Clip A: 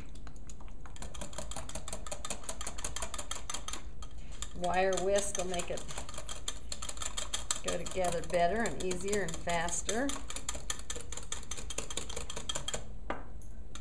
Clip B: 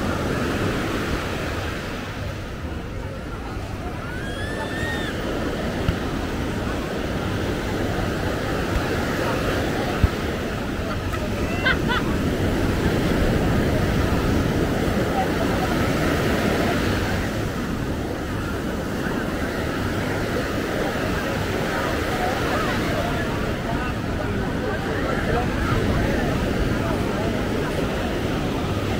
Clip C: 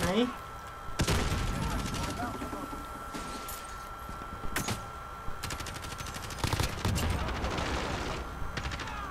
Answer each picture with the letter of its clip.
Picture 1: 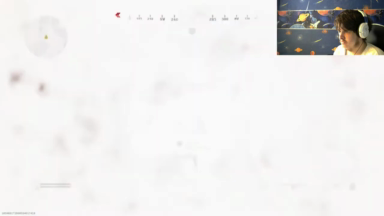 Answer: C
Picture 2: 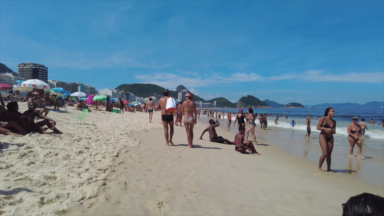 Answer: B